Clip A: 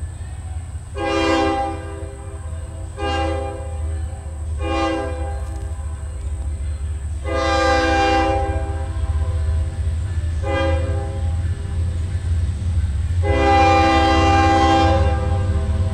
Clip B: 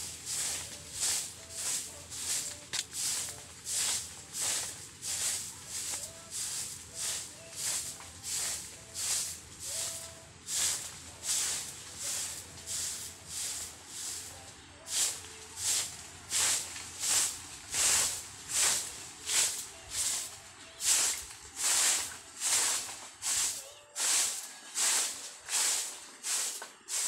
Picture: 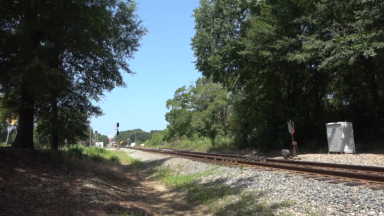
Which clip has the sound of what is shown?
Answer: A